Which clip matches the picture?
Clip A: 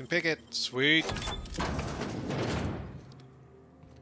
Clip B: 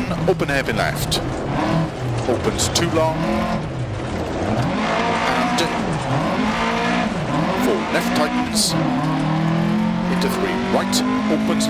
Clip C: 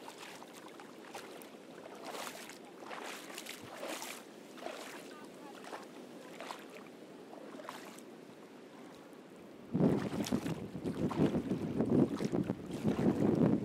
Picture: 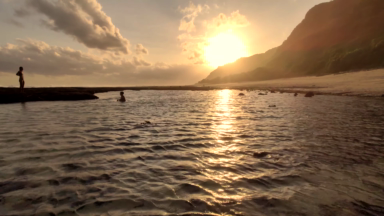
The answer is C